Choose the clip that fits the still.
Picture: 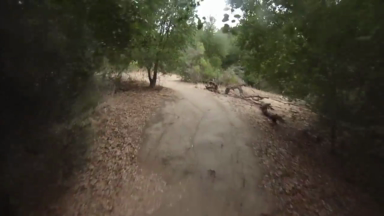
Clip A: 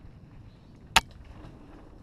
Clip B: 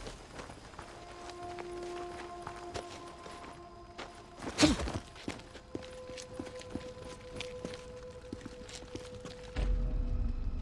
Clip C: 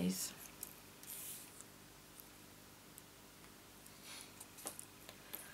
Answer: A